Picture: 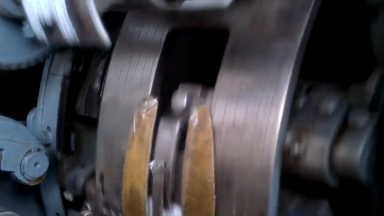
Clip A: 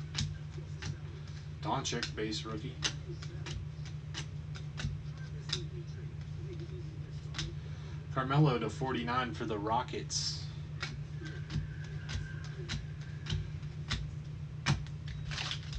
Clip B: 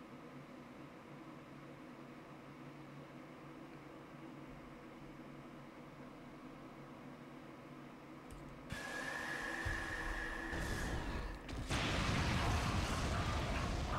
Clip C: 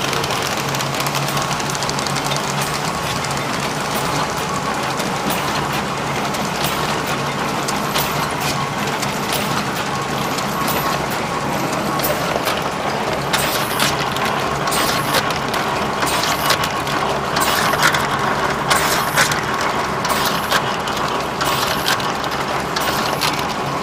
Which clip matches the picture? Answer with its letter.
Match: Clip C